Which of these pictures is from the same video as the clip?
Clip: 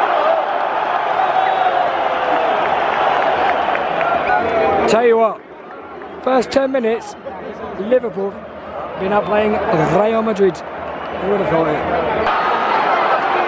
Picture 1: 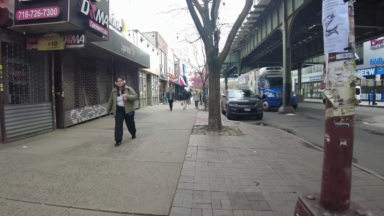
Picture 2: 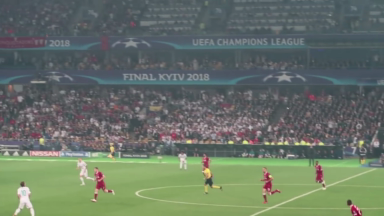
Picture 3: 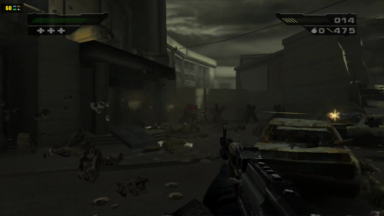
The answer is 2